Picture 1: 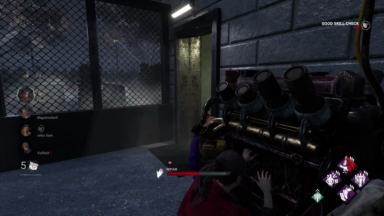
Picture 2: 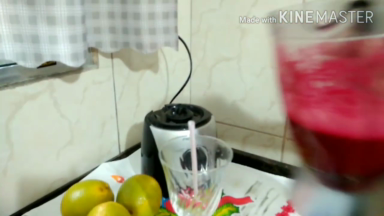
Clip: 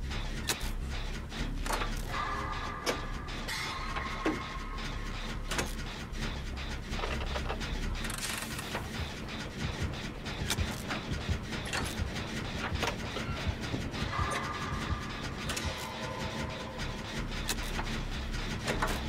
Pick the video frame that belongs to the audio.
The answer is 1